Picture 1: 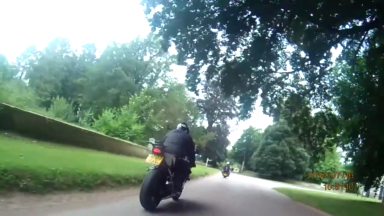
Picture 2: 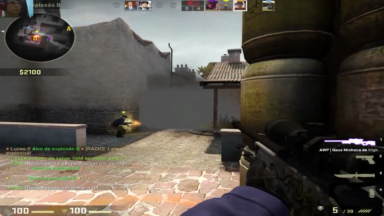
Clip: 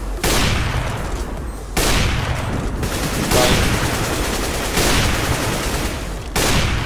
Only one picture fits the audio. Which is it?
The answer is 2